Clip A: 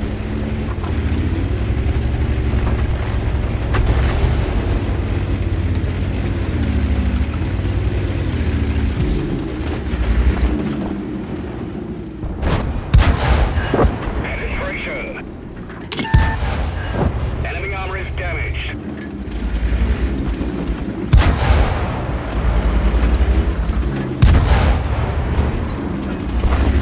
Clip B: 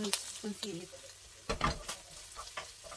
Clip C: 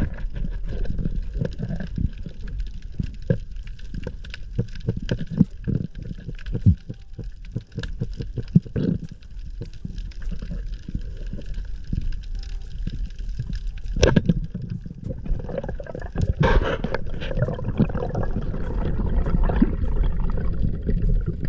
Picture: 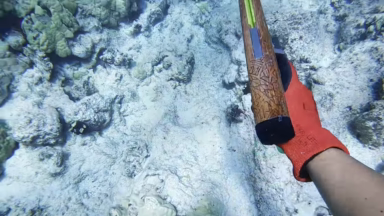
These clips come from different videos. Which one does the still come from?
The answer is C